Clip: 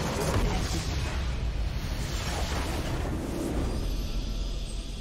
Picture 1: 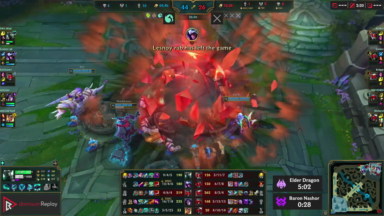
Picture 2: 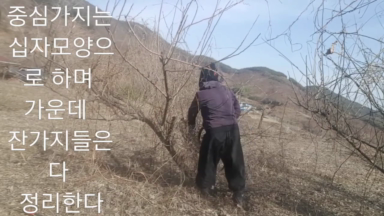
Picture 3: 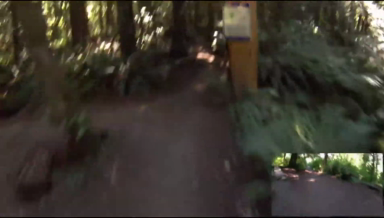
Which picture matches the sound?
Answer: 1